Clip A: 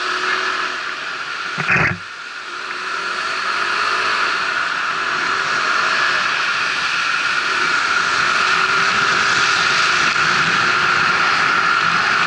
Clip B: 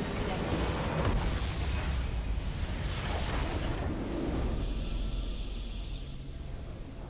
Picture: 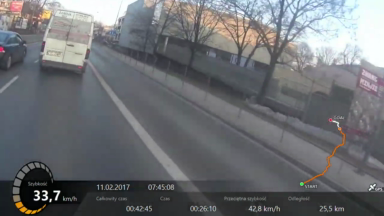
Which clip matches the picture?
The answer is A